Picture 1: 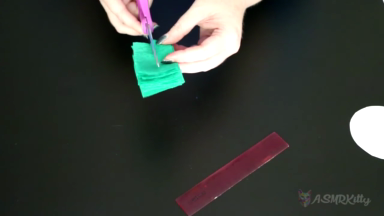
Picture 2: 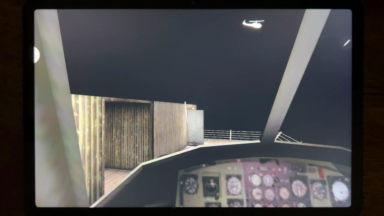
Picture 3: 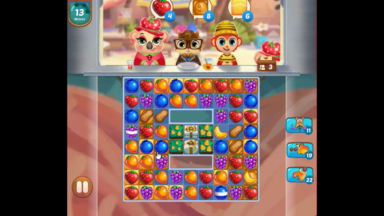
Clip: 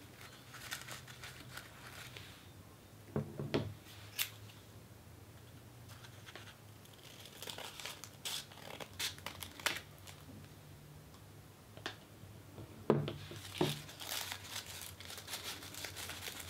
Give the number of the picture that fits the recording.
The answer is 1